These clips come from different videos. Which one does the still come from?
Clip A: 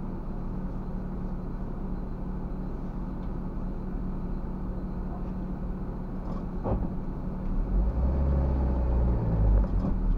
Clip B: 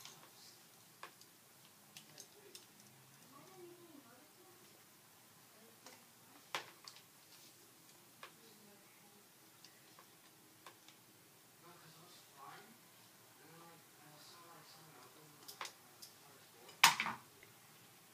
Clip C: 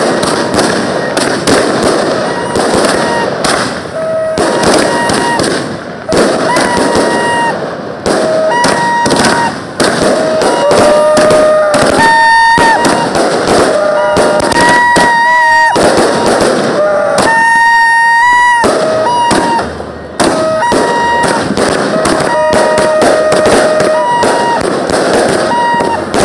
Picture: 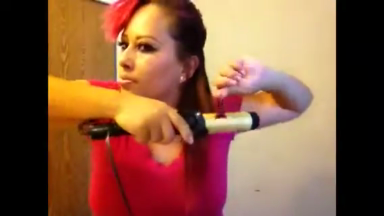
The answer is B